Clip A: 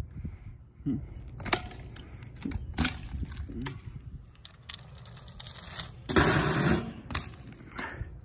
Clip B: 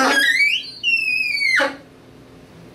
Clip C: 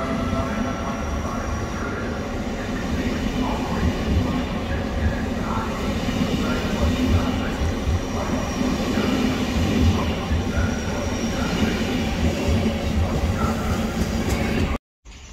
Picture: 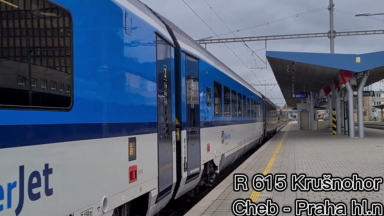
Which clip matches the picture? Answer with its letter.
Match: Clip C